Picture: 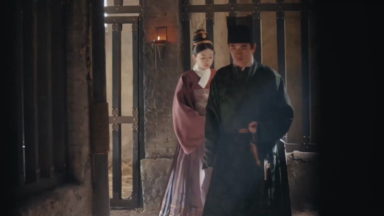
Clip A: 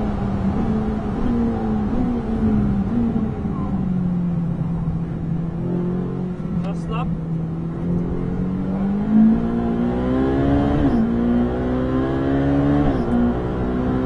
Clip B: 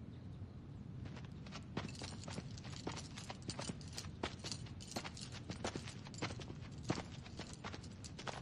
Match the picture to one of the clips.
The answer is B